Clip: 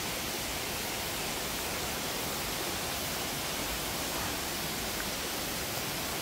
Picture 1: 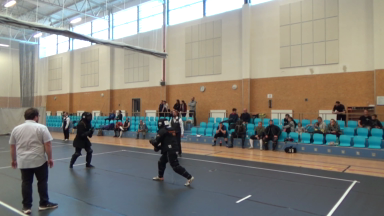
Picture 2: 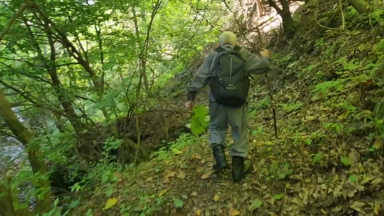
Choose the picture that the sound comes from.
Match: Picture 2